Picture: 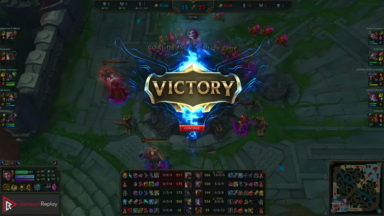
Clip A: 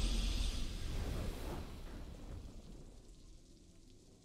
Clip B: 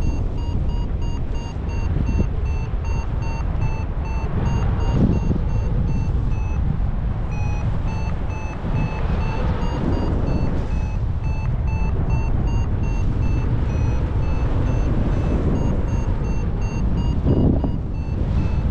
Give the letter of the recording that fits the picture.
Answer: A